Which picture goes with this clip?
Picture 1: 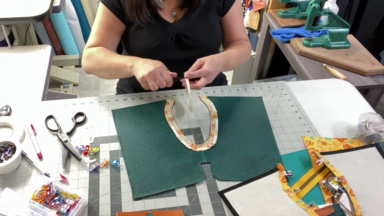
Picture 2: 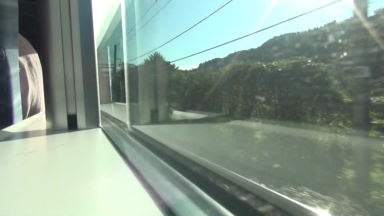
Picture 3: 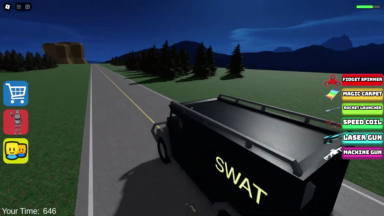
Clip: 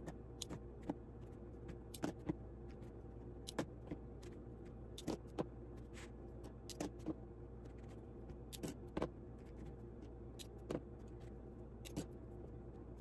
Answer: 1